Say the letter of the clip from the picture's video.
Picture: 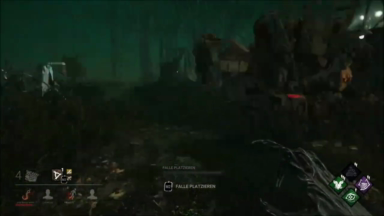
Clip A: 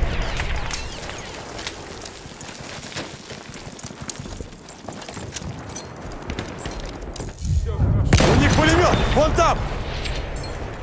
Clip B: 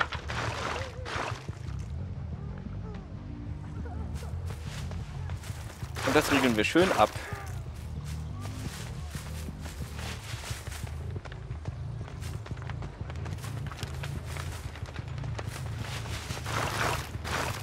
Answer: B